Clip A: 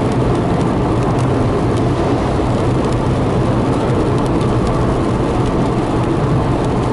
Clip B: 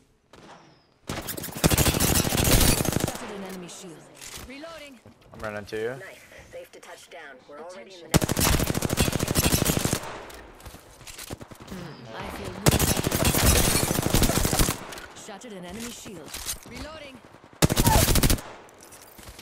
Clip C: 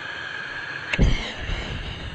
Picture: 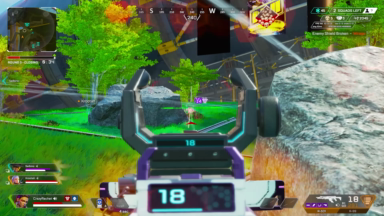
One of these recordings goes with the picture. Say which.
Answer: B